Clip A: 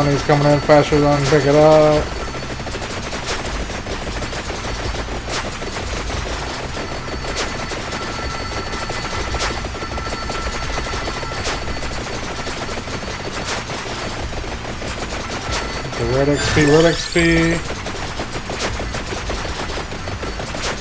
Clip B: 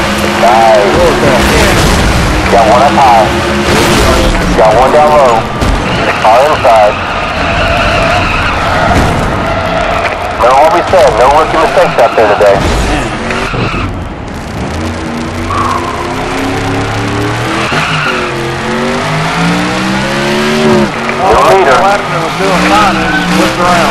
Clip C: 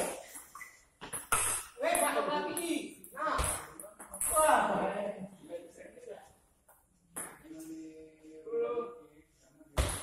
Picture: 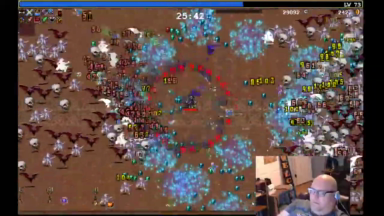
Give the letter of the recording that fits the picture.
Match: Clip A